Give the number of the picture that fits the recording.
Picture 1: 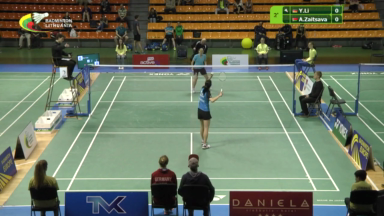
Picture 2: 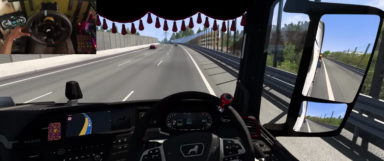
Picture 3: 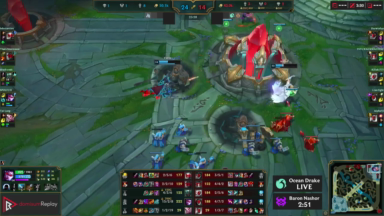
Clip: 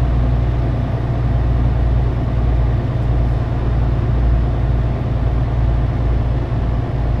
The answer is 2